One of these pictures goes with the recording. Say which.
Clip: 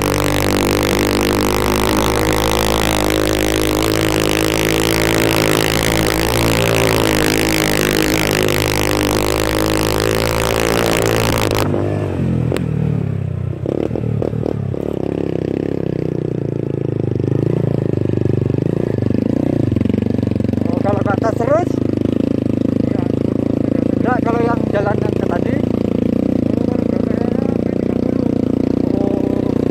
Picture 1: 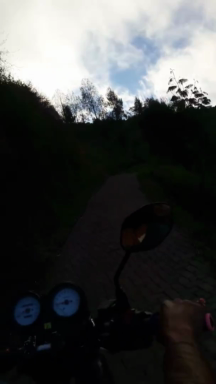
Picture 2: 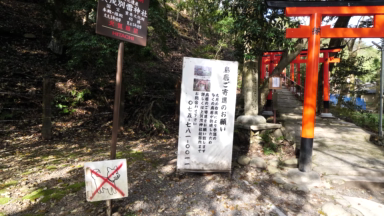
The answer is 1